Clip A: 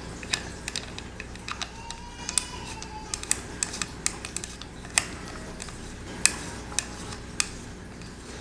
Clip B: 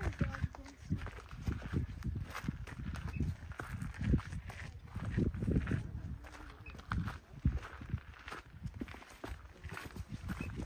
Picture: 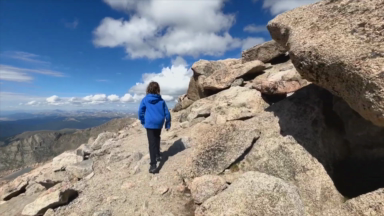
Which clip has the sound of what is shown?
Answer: B